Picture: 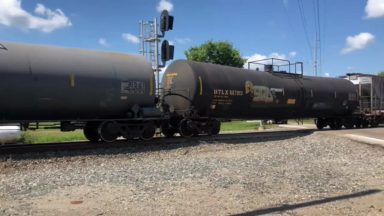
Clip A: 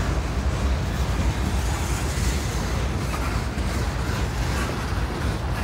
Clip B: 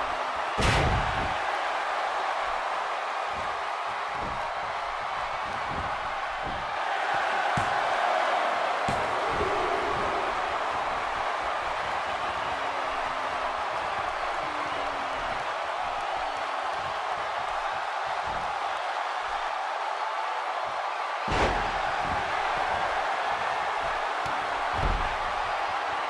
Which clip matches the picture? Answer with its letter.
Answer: A